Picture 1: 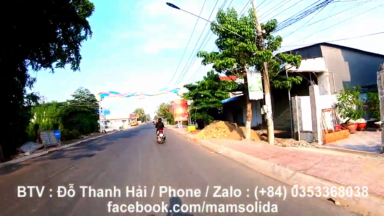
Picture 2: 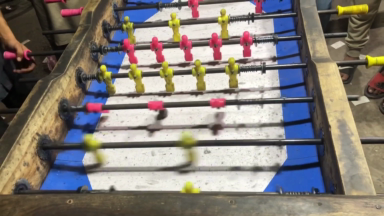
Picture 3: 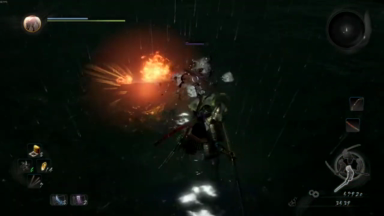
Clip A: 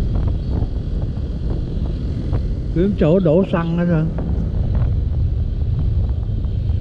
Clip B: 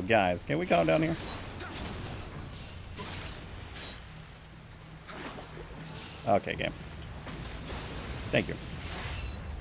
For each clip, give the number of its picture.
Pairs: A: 1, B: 3